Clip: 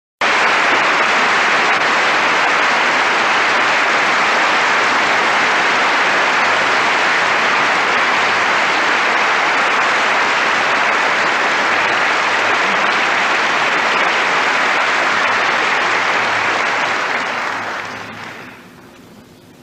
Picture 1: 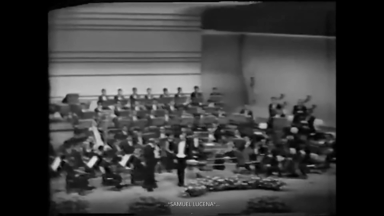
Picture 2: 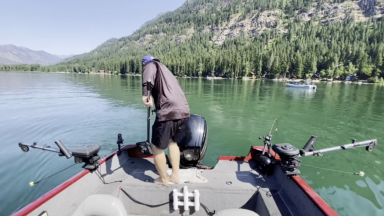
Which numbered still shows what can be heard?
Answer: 1